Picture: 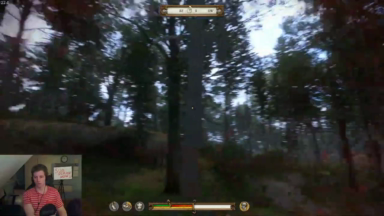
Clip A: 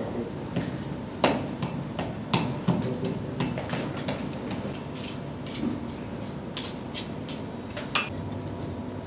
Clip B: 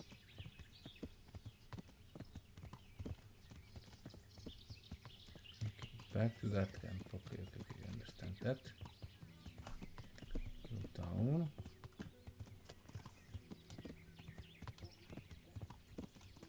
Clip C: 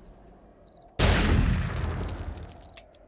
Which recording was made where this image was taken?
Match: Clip B